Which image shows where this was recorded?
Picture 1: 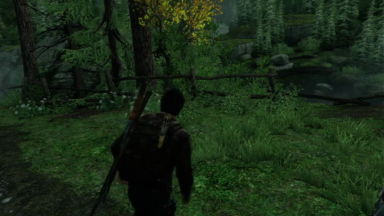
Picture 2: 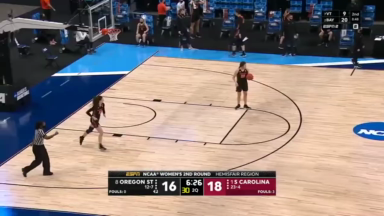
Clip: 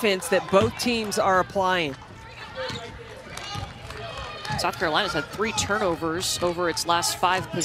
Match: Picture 2